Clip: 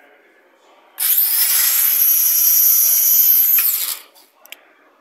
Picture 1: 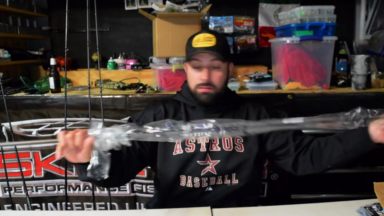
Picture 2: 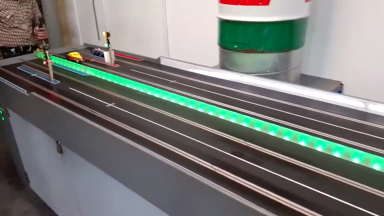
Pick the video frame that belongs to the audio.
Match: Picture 2